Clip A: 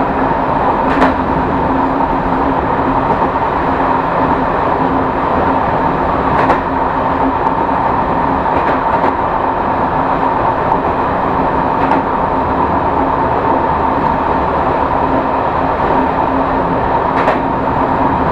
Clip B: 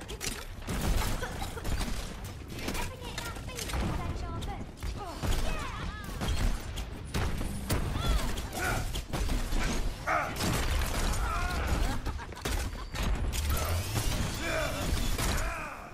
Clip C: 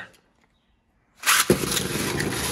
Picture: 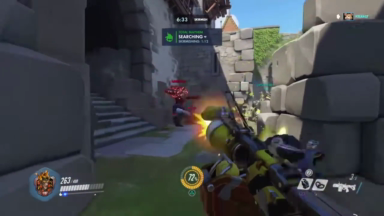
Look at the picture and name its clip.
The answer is B